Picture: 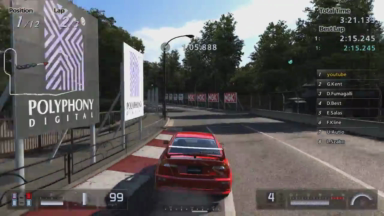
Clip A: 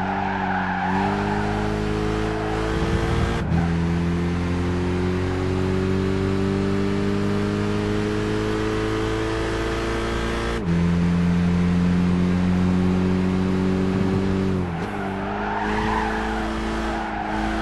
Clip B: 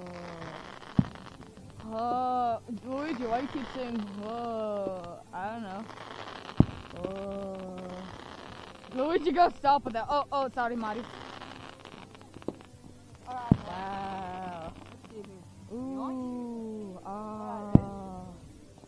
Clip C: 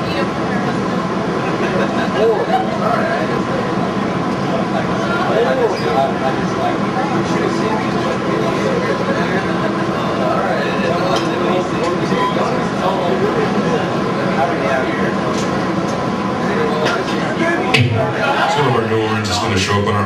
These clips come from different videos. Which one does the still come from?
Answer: A